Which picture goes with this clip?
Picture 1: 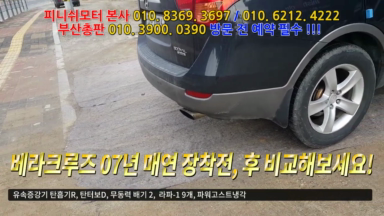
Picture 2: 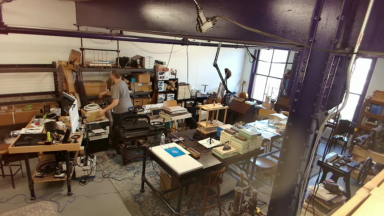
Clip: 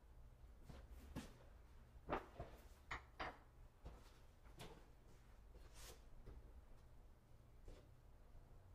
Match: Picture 2